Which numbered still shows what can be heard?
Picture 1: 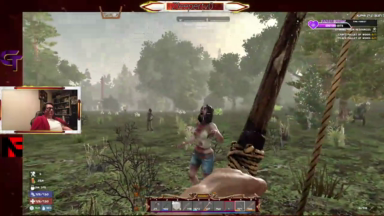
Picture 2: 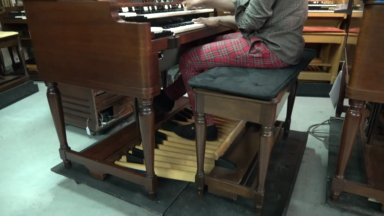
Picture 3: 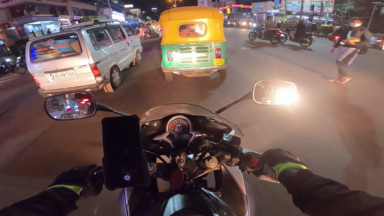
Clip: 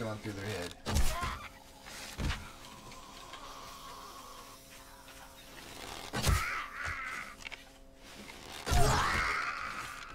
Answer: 1